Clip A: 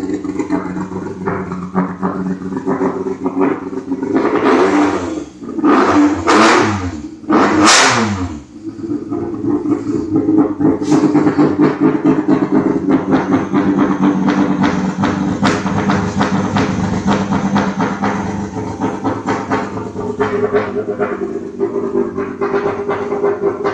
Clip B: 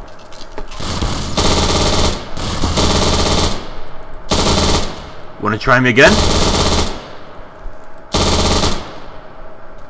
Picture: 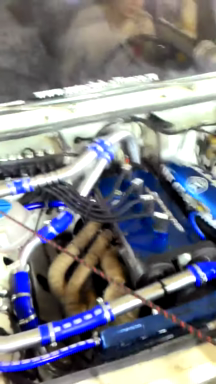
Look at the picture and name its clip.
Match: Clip A